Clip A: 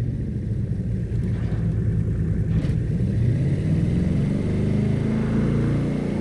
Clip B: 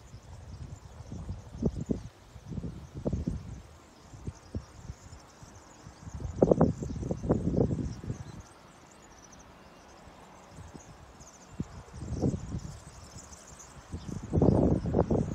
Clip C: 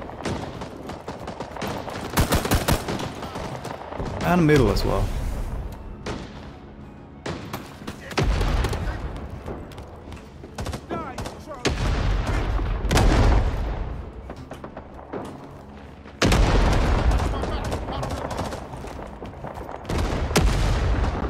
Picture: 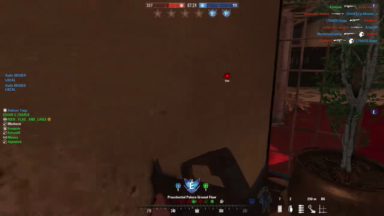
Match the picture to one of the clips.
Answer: C